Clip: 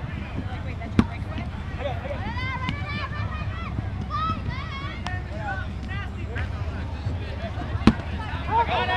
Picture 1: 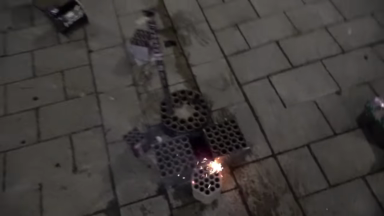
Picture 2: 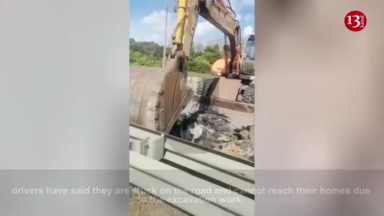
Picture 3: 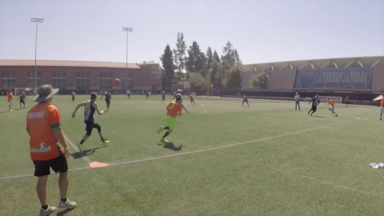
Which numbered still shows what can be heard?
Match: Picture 3